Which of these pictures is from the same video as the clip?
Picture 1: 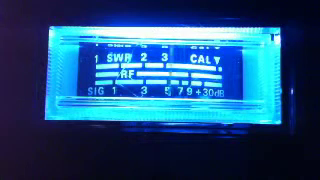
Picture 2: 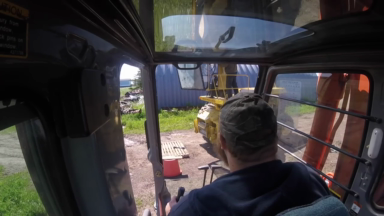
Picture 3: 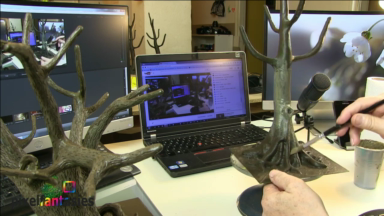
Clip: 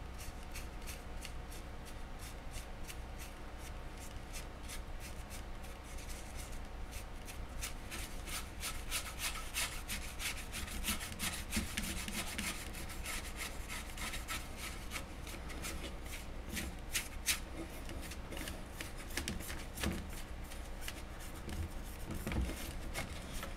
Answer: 3